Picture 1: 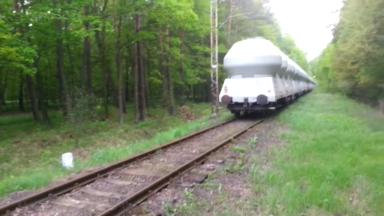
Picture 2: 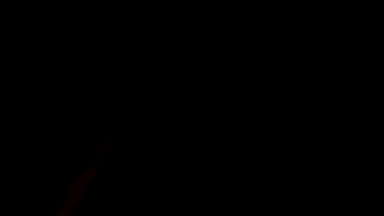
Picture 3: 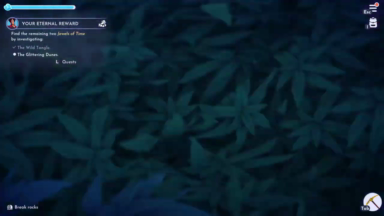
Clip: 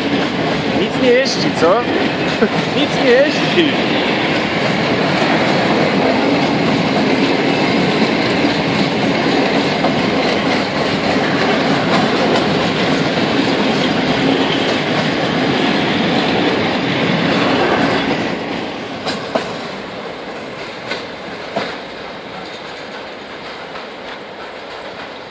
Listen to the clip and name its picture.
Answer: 1